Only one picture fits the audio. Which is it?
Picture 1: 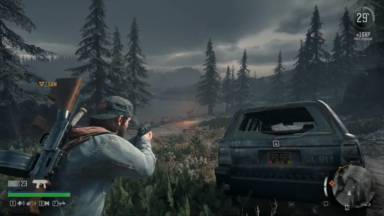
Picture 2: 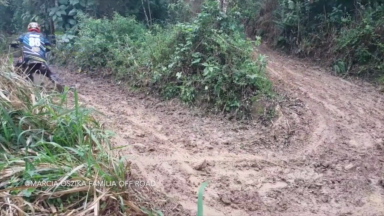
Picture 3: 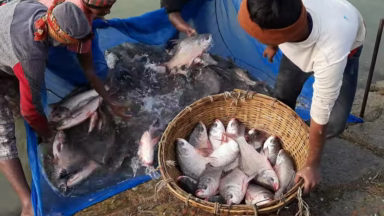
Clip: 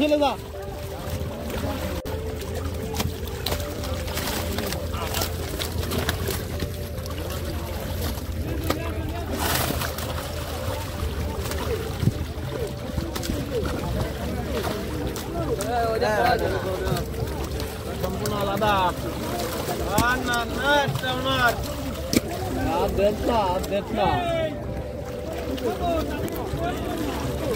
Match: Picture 3